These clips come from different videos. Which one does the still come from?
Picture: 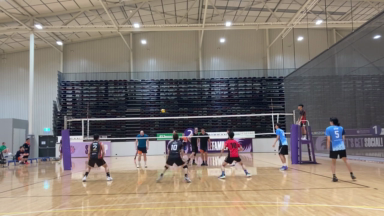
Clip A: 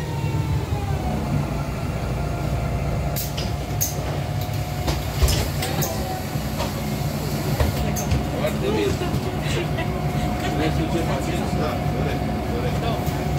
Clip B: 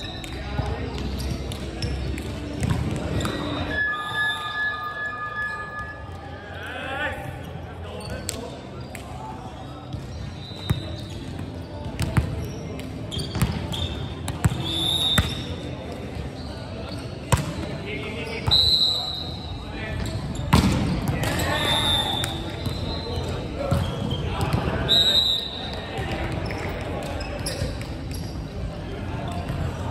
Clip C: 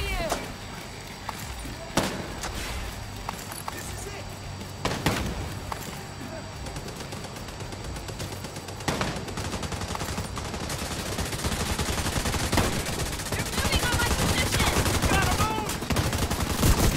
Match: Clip B